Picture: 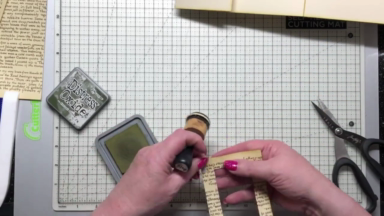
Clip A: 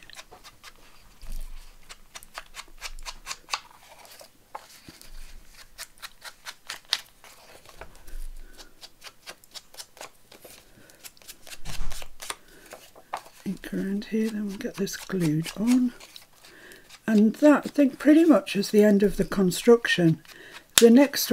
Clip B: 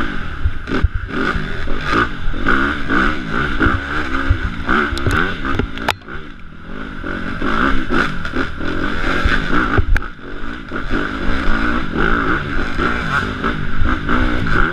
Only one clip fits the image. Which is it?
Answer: A